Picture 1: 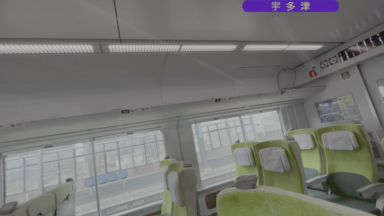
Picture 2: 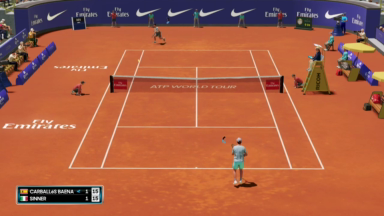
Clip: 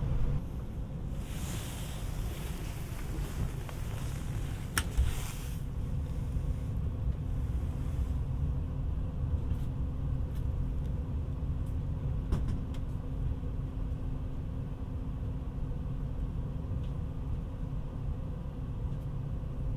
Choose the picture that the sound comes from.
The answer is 1